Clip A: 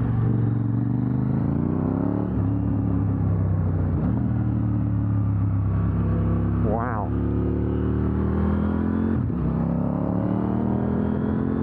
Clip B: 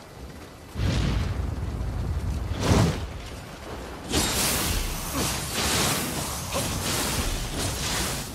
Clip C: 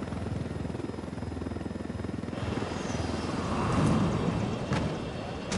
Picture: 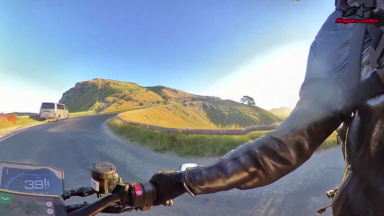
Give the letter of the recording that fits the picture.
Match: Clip A